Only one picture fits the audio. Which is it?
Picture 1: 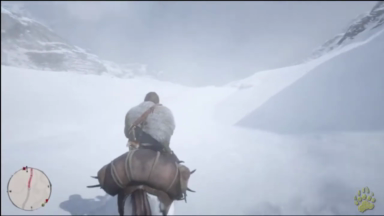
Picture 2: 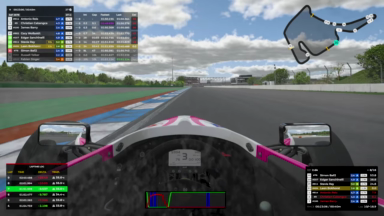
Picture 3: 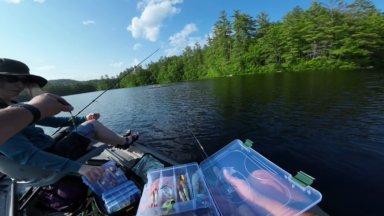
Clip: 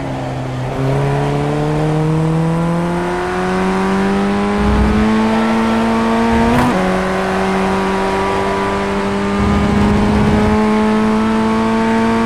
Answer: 2